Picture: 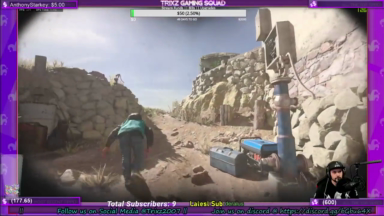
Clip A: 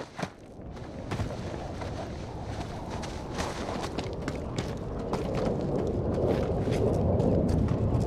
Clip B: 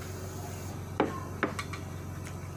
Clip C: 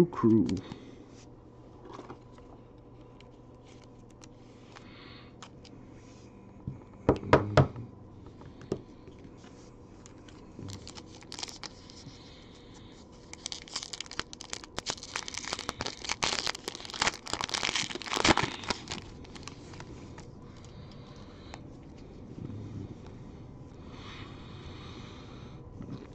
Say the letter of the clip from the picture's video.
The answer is A